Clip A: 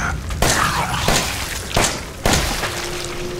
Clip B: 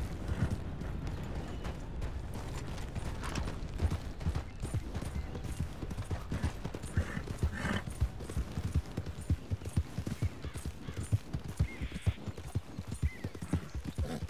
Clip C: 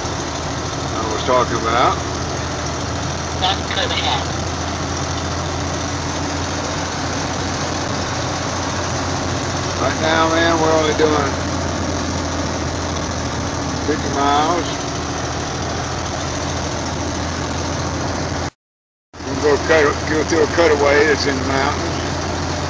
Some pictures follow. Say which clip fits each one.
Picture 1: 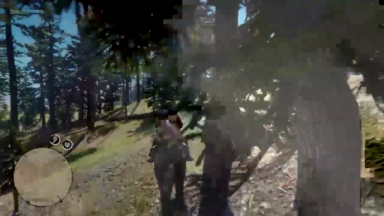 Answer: B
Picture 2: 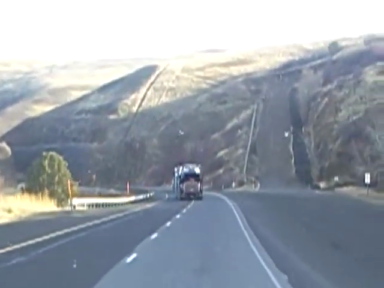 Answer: C